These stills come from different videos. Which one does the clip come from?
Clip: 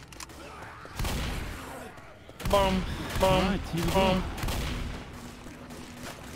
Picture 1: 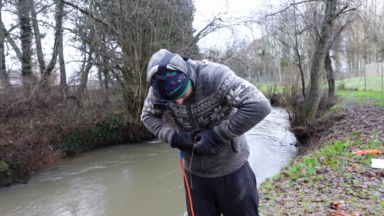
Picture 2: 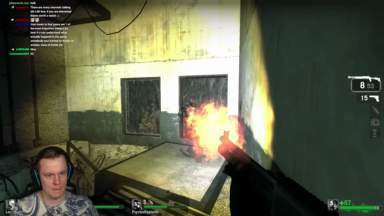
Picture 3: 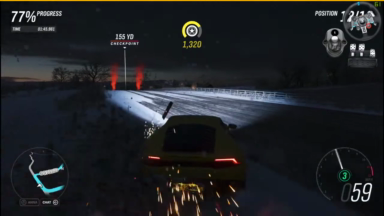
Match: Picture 2